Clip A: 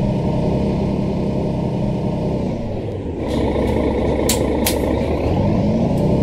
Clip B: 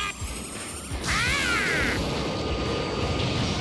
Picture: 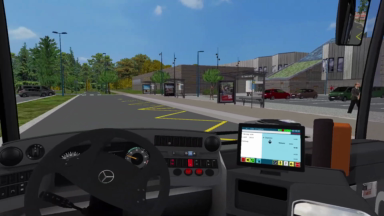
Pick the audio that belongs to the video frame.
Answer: A